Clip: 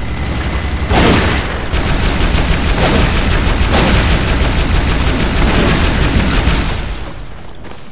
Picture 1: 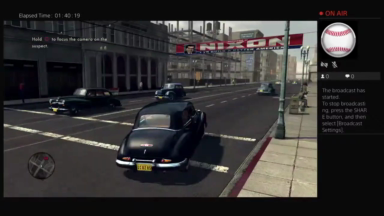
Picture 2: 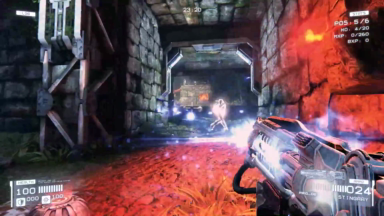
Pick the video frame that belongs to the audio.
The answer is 2